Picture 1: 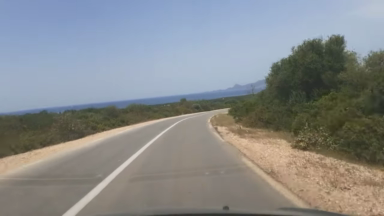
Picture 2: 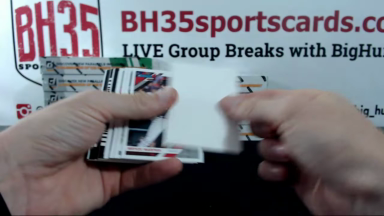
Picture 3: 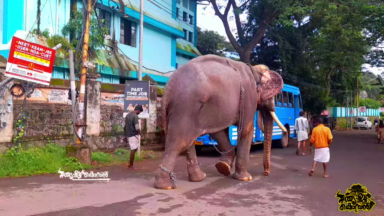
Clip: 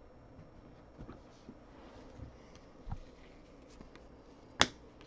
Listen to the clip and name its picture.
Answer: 2